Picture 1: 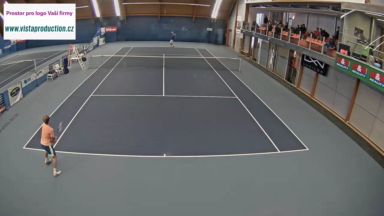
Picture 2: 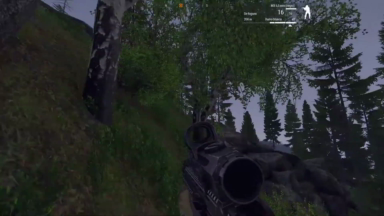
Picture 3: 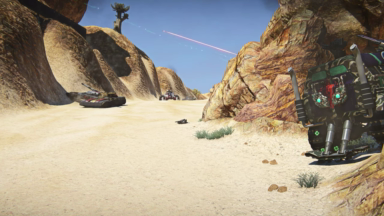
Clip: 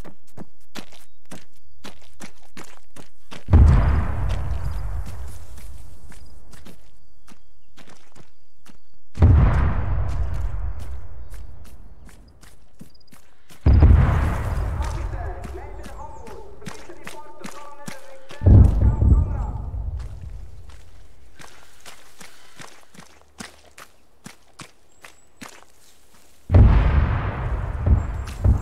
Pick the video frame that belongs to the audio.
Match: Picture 2